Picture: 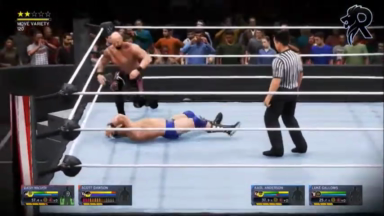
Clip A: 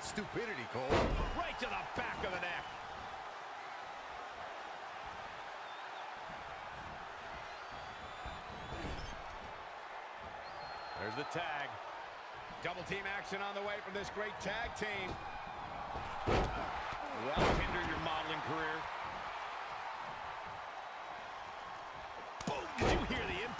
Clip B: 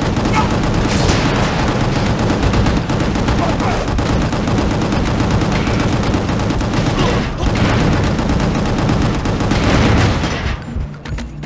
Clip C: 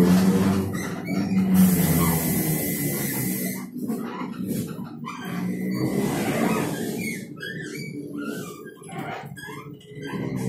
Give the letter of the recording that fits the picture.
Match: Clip A